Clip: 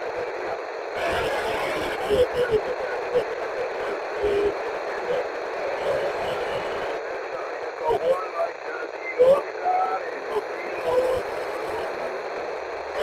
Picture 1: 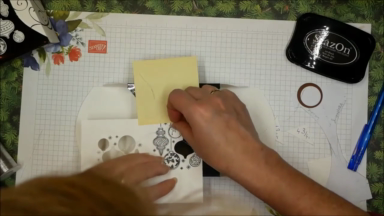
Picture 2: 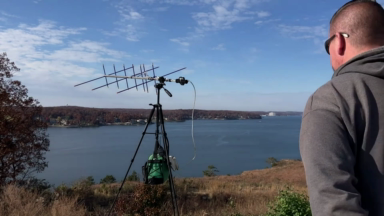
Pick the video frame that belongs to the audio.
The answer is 2